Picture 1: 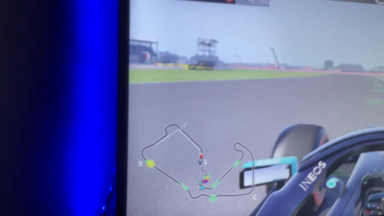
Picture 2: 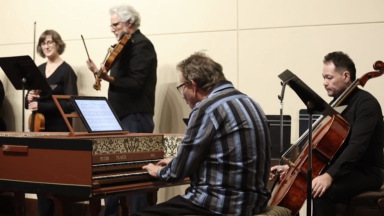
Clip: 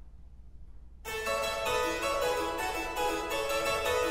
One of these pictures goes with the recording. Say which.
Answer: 2